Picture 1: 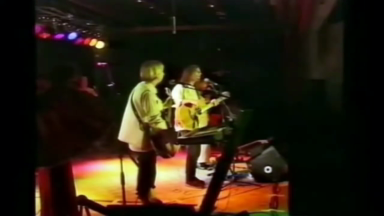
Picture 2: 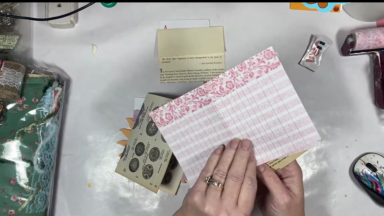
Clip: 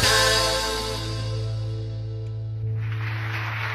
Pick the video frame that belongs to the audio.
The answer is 1